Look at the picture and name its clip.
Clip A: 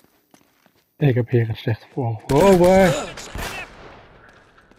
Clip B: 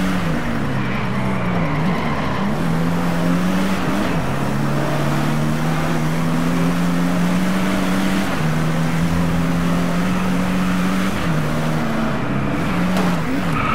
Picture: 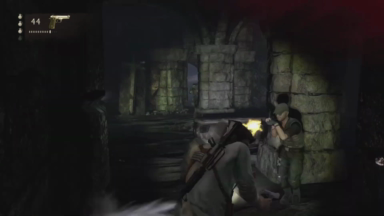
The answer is A